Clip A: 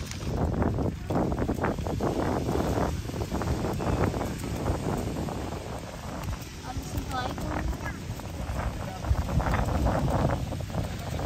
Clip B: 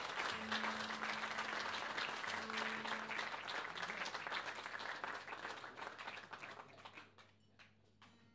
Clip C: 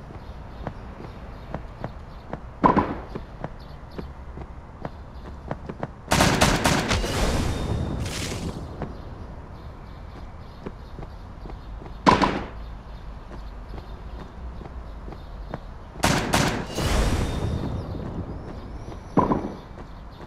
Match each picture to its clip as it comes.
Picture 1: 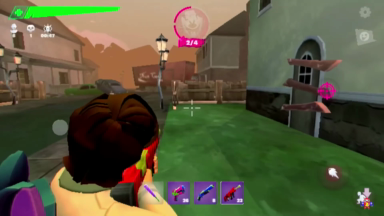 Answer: C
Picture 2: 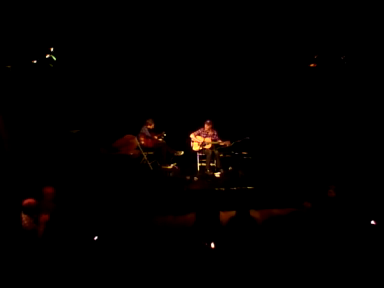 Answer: B